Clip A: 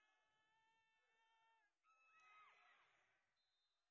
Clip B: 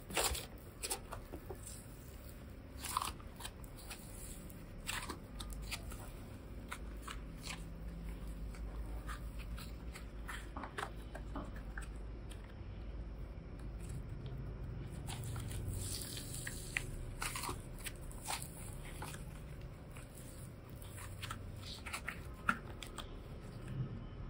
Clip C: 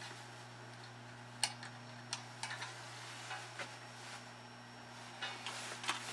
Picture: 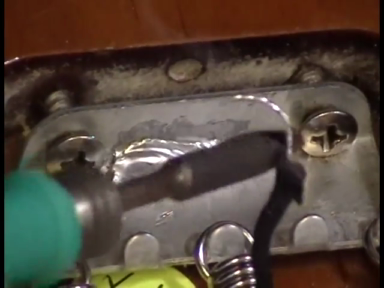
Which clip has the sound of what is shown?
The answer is C